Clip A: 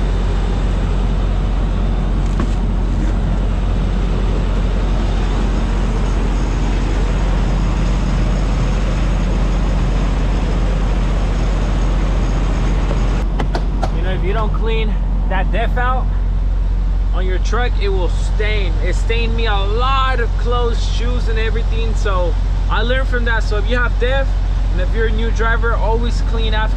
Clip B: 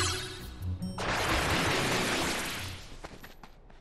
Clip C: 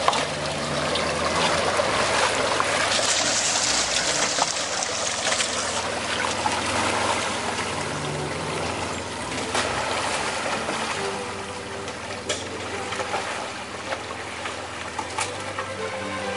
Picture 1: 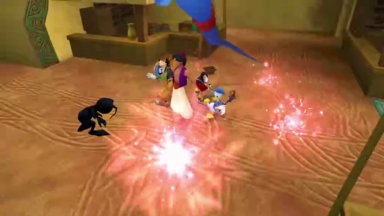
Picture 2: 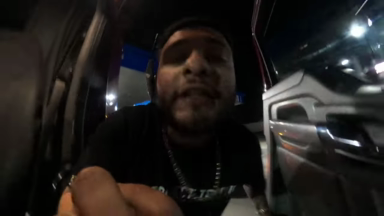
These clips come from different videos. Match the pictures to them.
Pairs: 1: B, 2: A